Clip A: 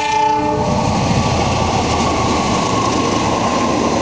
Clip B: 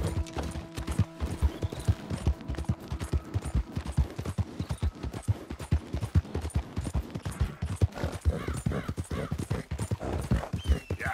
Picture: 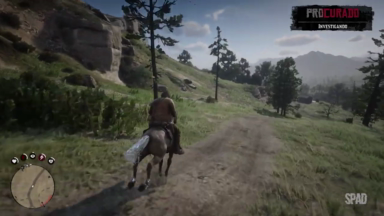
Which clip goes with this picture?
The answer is B